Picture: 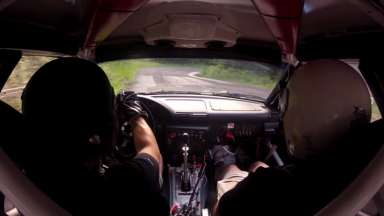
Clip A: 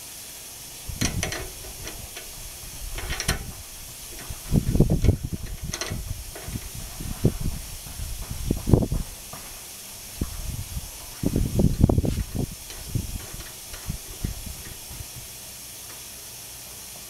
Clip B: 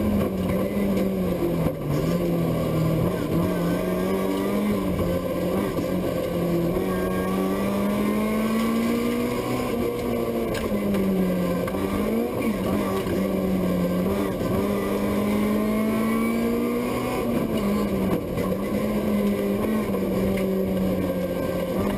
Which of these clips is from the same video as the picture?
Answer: B